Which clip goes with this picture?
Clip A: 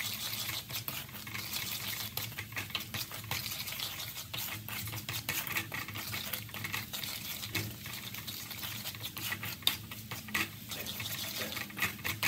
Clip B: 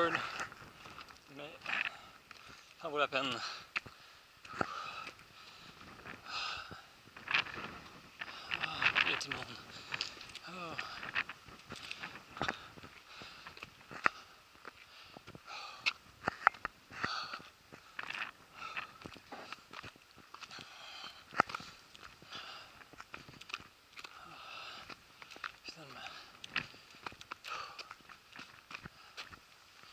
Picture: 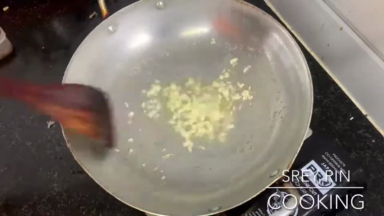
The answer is A